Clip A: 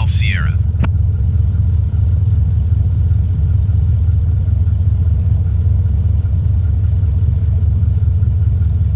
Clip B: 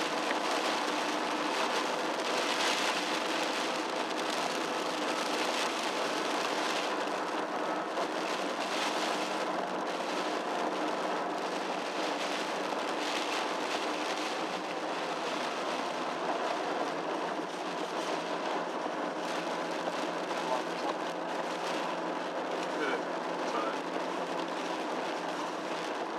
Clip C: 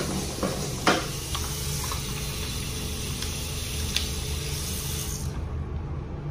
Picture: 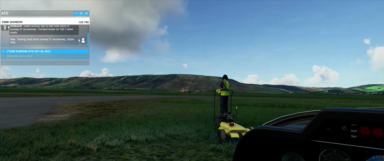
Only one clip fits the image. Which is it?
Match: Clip A